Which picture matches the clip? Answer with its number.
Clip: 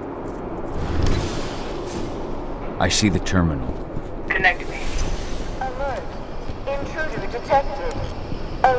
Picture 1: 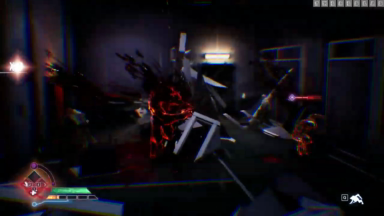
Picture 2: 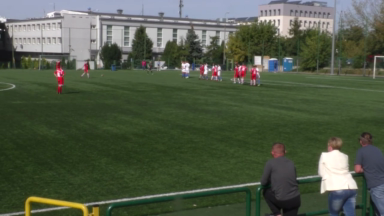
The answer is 1